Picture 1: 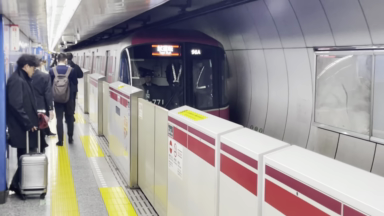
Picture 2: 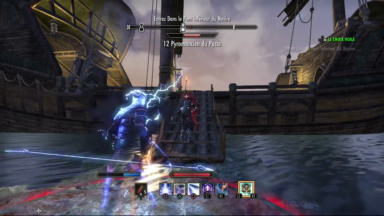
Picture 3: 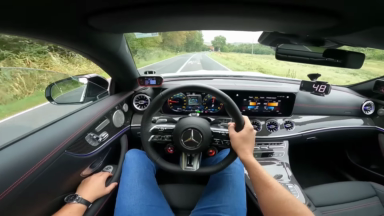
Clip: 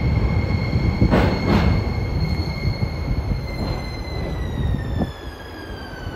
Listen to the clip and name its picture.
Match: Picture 1